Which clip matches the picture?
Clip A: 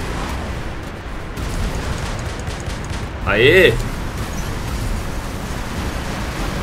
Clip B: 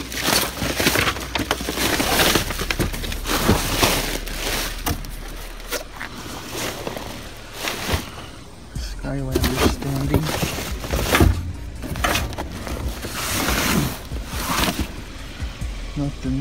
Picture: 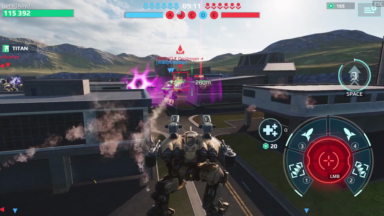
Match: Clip A